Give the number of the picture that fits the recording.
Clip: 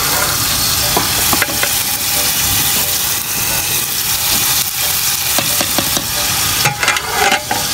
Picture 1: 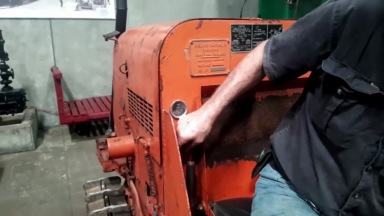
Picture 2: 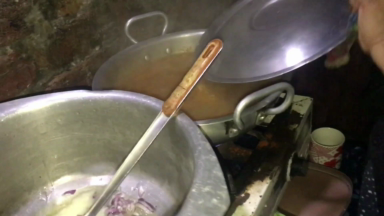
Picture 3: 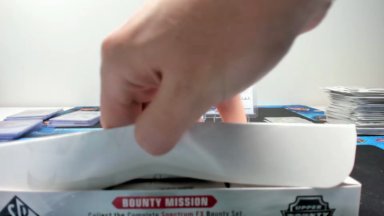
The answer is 2